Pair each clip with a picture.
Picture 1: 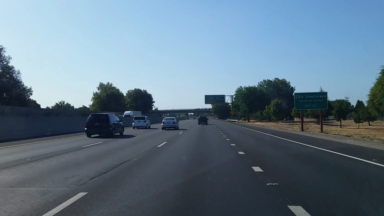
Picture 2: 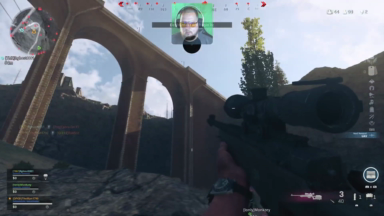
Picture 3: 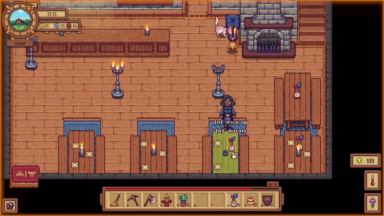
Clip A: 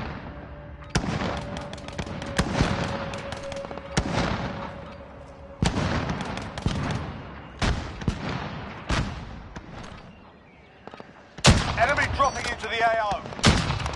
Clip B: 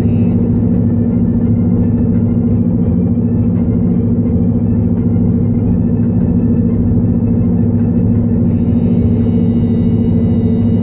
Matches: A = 2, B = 1